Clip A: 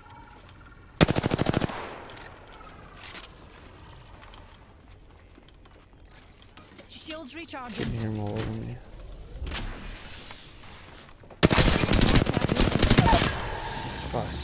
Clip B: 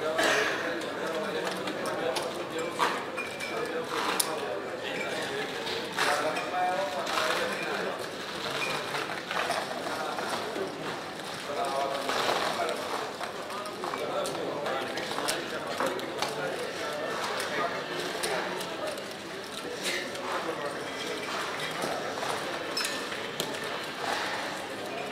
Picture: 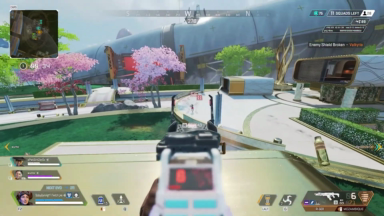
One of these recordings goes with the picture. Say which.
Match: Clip A